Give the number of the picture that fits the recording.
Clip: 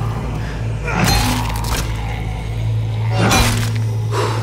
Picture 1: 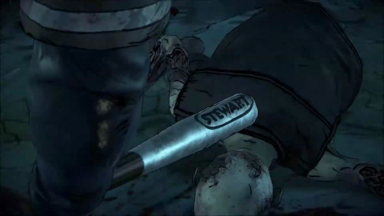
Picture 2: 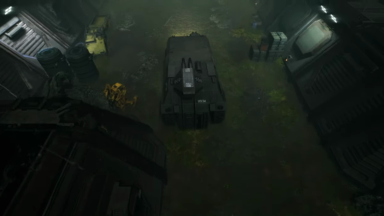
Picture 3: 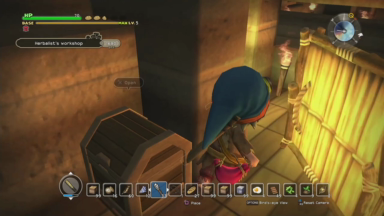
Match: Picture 1